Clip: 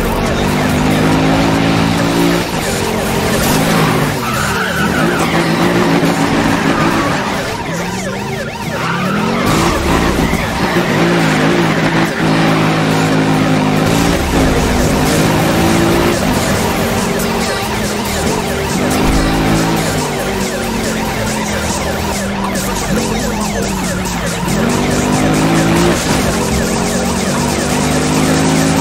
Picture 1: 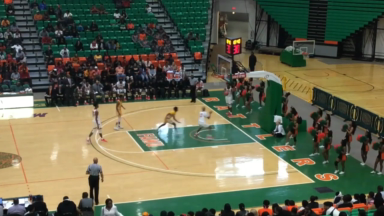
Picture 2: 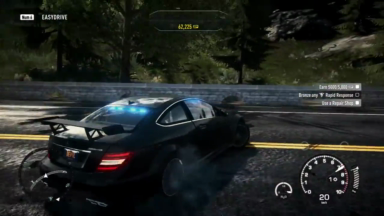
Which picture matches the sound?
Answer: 2